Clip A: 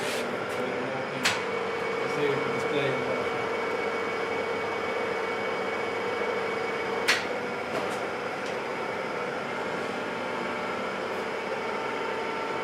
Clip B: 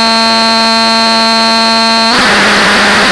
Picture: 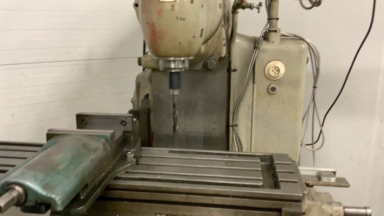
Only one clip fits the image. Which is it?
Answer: A